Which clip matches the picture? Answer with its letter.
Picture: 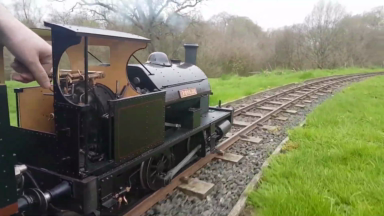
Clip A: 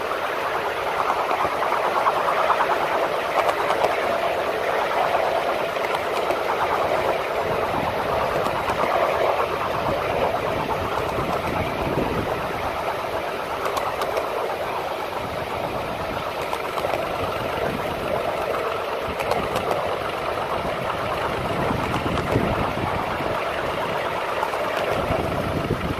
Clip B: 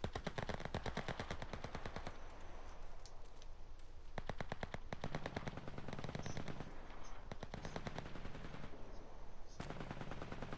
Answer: A